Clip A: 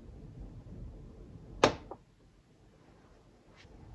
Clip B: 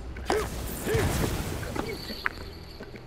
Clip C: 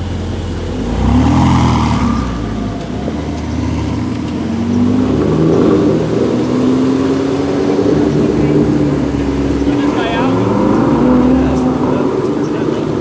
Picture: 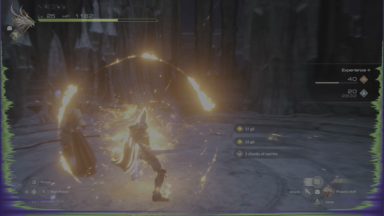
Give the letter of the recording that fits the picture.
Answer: B